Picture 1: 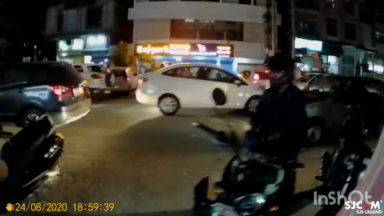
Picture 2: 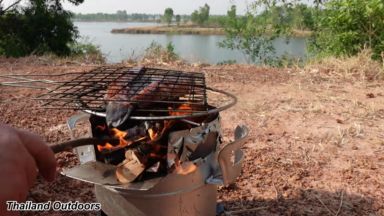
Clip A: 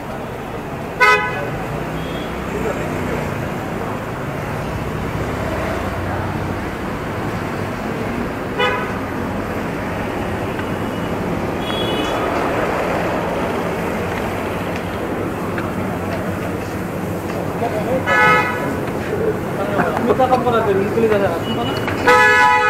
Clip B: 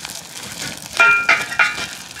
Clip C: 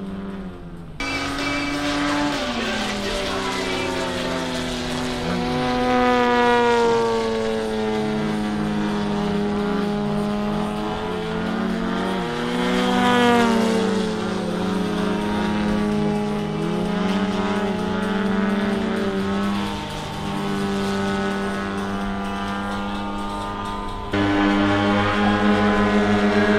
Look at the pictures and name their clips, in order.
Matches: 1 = A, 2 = B